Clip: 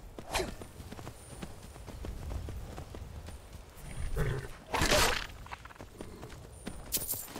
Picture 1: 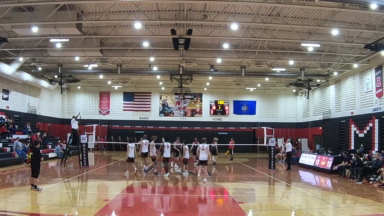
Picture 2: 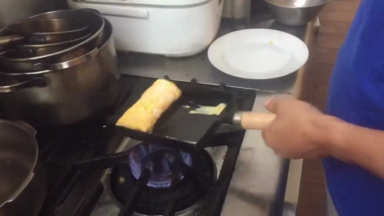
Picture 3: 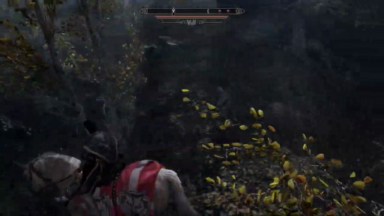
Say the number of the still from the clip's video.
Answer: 3